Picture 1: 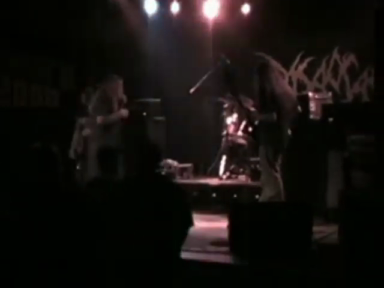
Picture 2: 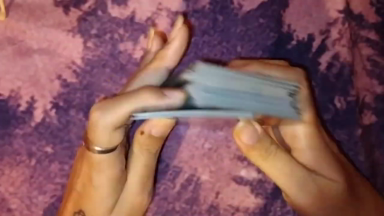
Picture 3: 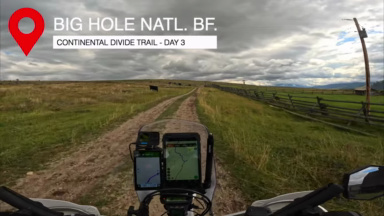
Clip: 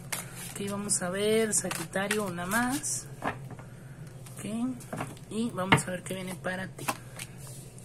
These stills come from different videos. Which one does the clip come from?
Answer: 2